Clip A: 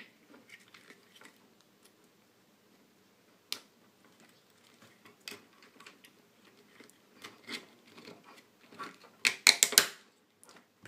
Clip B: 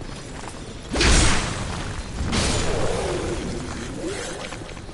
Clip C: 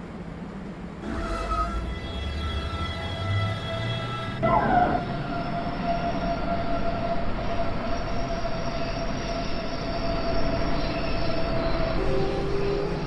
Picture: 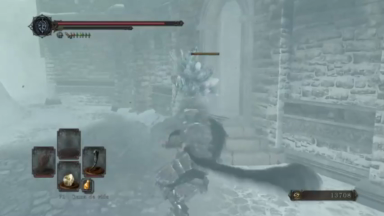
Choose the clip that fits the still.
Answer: B